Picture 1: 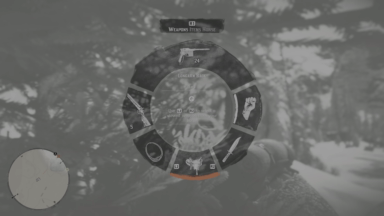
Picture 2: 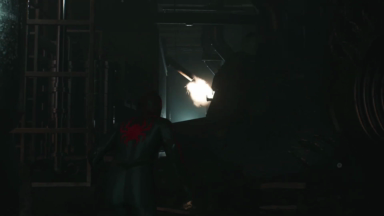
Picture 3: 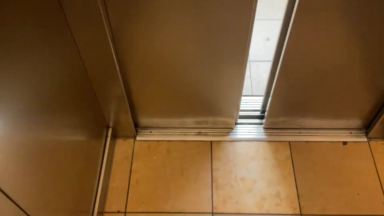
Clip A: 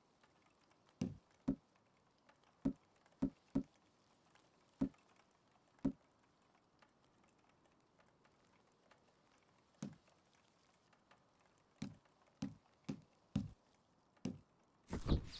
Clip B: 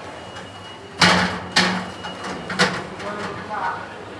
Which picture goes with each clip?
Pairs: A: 1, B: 3